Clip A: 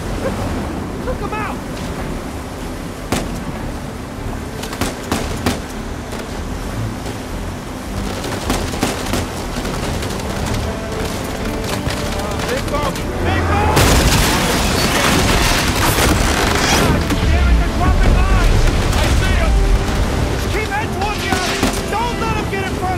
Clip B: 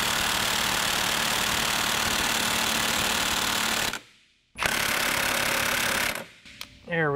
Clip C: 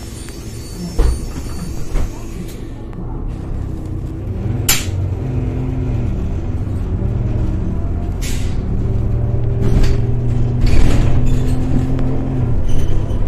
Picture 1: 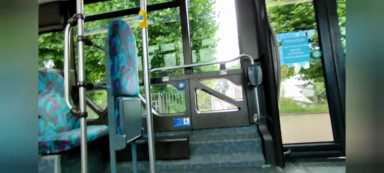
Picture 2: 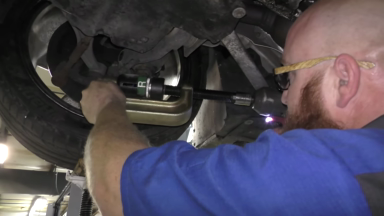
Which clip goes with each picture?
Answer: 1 C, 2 B